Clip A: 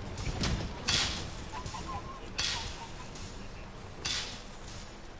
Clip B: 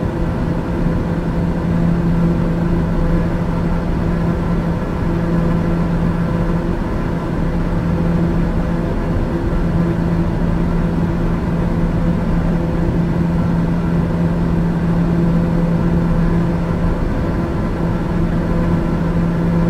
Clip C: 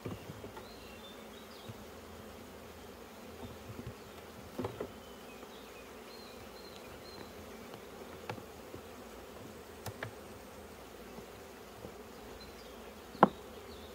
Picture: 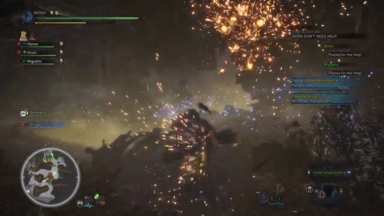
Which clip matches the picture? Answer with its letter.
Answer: A